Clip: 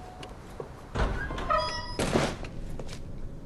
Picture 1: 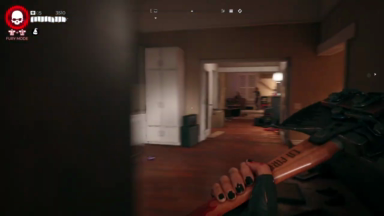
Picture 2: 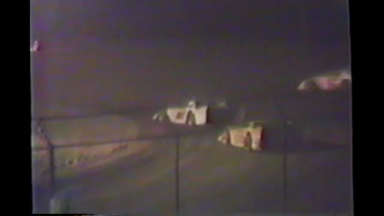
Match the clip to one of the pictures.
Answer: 1